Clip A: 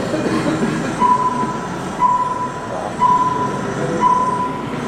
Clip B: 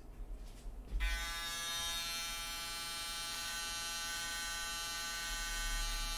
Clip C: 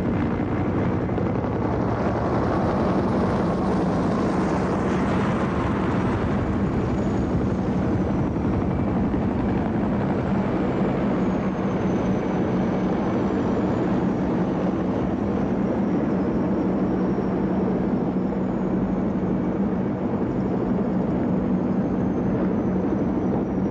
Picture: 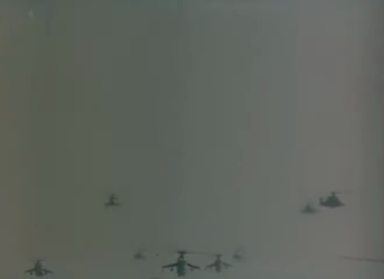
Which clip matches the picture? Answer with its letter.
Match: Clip C